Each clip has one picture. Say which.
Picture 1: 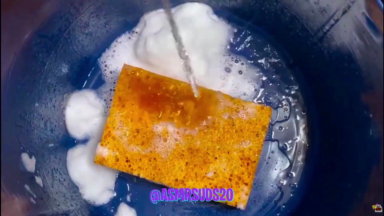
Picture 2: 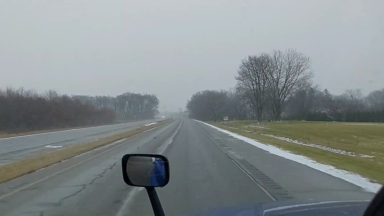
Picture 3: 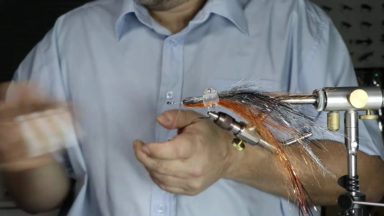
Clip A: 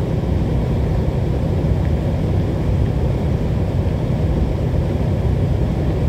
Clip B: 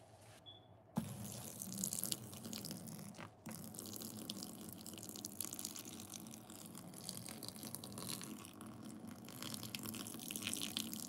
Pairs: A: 2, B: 1